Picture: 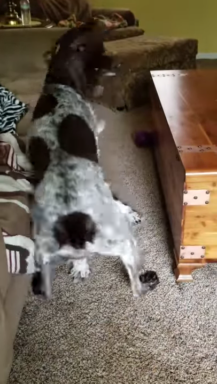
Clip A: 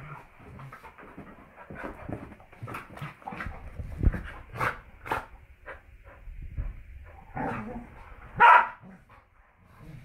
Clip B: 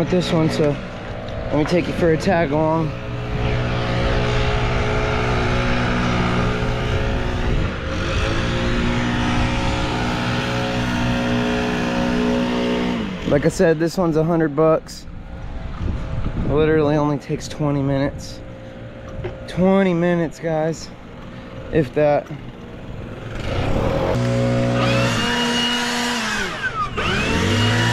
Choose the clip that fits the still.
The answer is A